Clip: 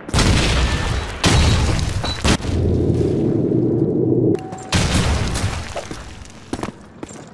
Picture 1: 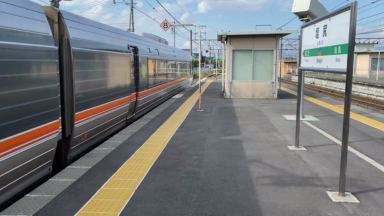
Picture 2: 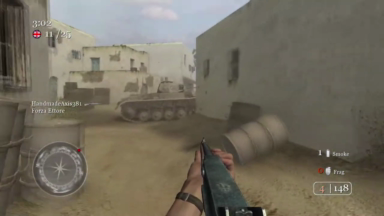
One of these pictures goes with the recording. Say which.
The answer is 2